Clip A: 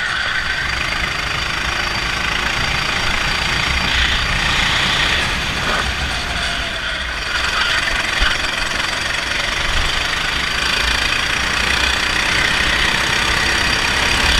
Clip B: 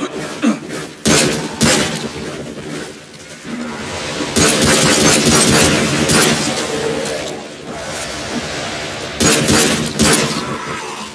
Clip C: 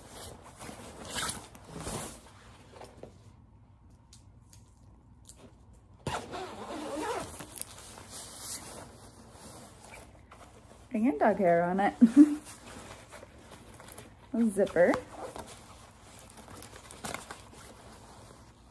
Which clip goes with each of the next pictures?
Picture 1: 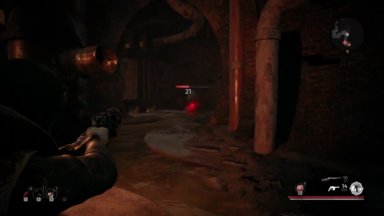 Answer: B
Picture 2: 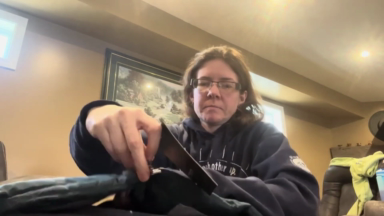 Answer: C